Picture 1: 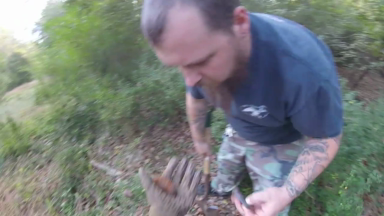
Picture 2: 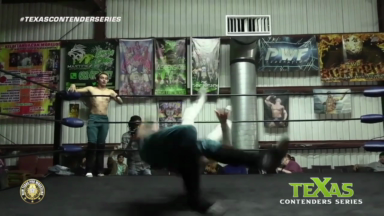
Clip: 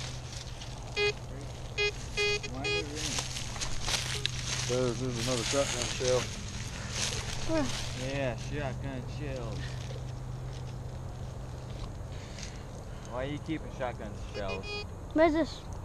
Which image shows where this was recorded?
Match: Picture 1